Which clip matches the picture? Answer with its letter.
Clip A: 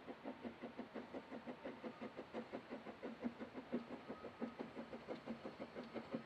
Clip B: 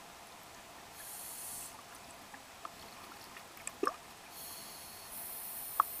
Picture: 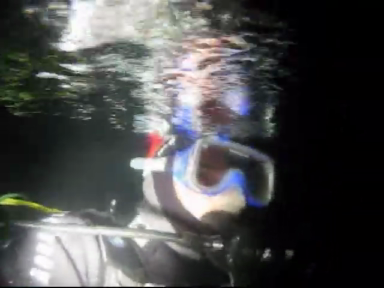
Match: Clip B